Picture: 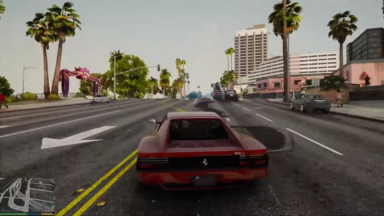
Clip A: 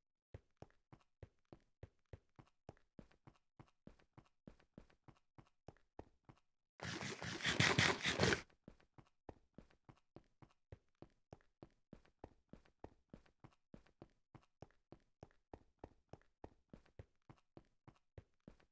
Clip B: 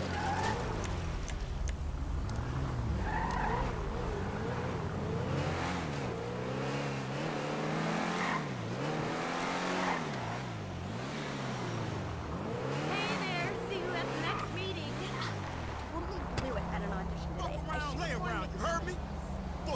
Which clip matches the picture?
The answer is B